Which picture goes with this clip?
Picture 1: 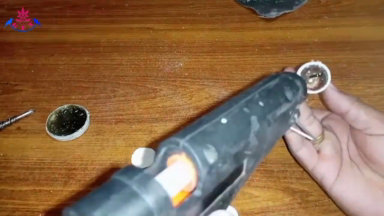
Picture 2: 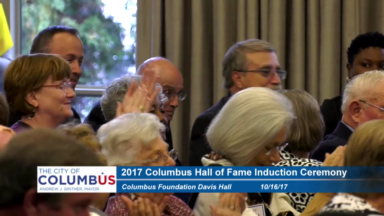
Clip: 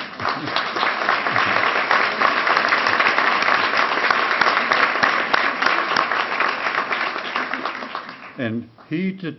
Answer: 2